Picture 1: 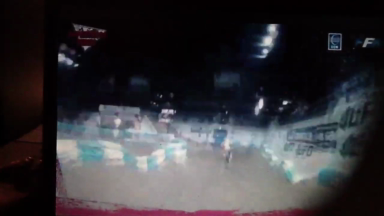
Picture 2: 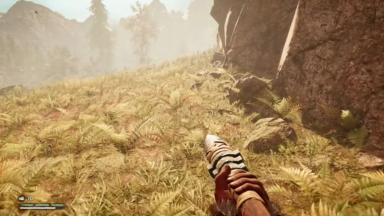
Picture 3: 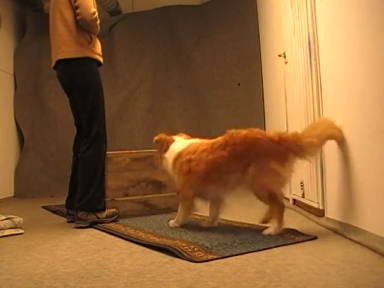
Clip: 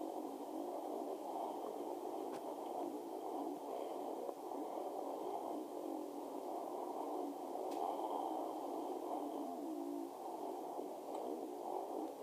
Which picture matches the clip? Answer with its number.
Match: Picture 1